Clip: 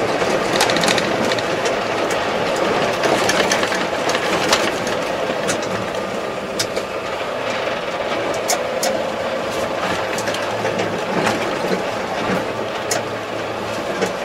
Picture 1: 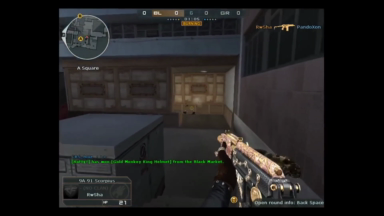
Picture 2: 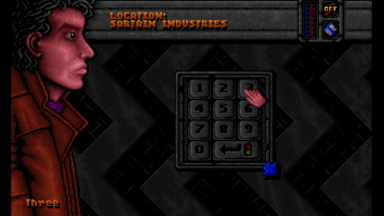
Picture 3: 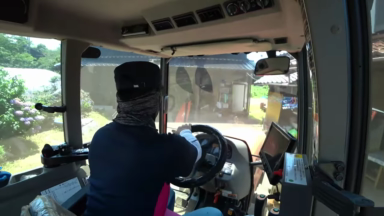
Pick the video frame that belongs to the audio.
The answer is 3